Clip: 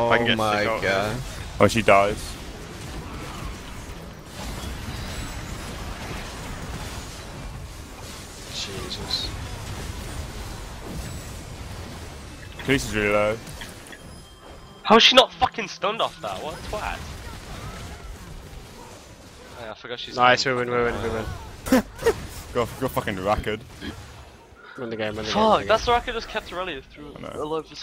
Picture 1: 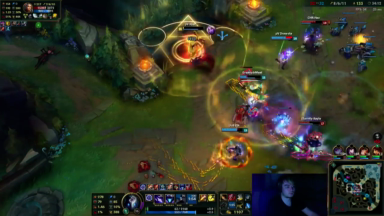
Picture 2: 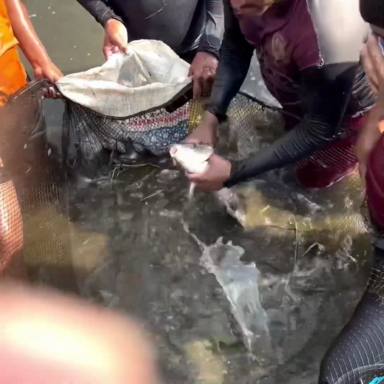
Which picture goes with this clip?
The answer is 1